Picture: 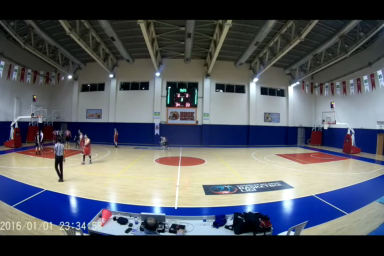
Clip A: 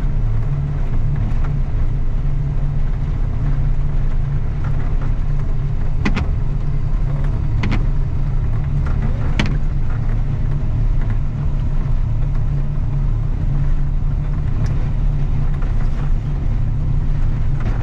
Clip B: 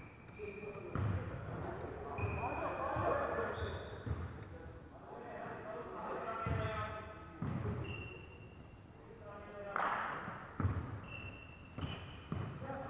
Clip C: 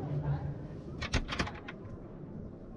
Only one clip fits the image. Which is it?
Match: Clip B